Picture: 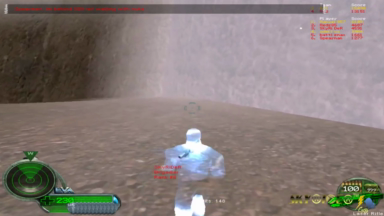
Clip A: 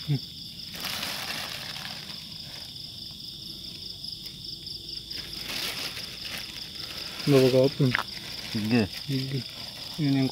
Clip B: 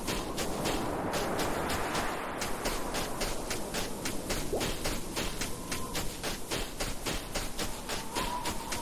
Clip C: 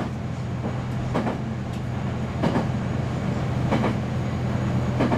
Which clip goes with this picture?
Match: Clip B